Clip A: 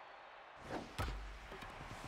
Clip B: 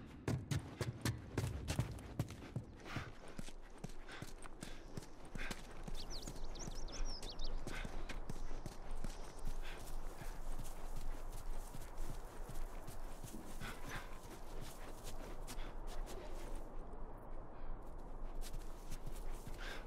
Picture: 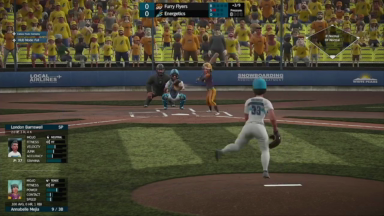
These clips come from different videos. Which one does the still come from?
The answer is A